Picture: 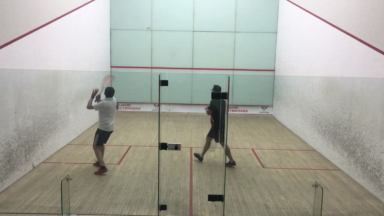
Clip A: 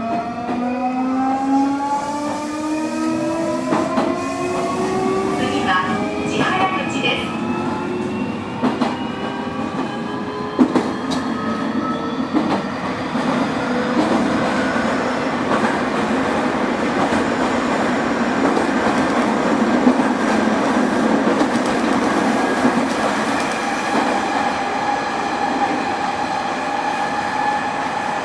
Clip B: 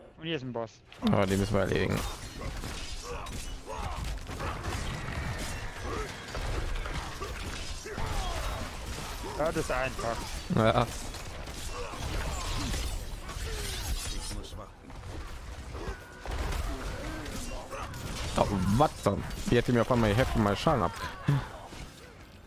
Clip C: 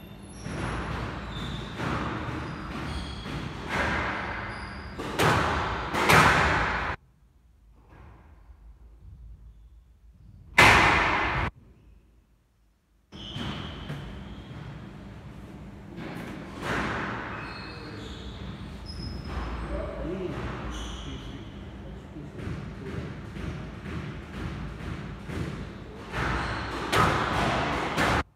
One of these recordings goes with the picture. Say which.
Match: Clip C